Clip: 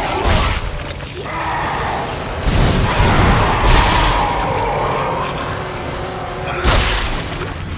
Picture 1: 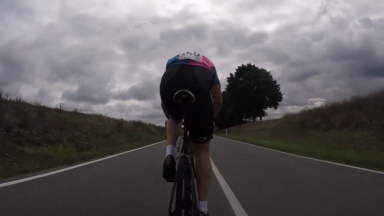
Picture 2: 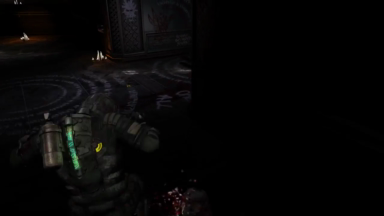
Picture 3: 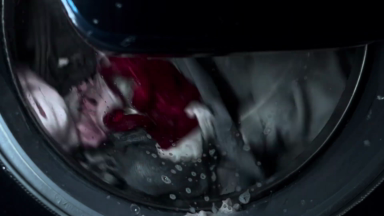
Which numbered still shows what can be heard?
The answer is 2